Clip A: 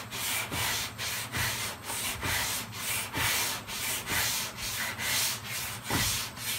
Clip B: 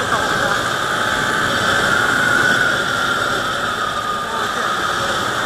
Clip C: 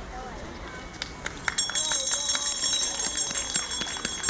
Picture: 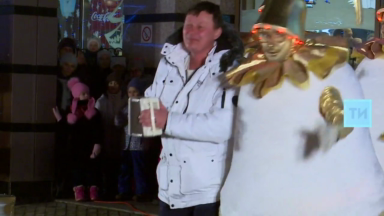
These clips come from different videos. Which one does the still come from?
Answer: C